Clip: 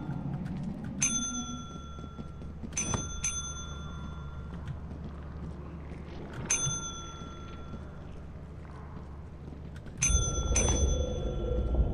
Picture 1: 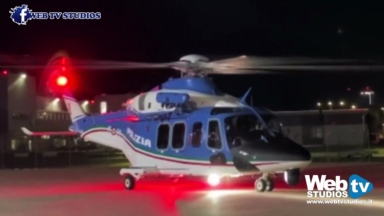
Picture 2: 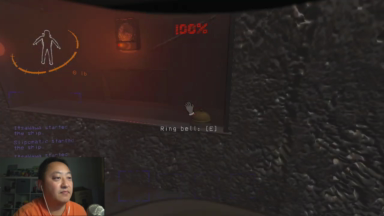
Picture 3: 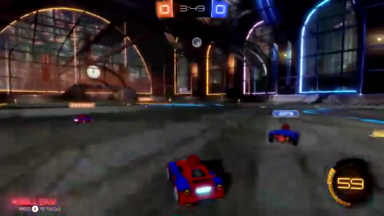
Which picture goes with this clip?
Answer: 2